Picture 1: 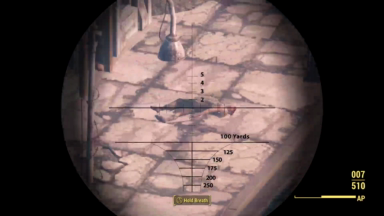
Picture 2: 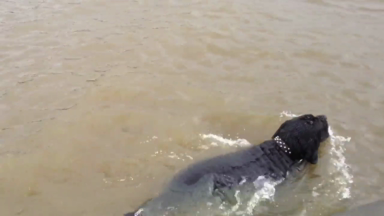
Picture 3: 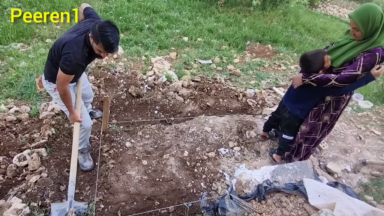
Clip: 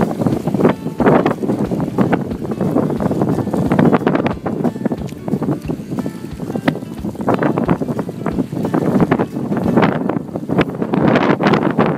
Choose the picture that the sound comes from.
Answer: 2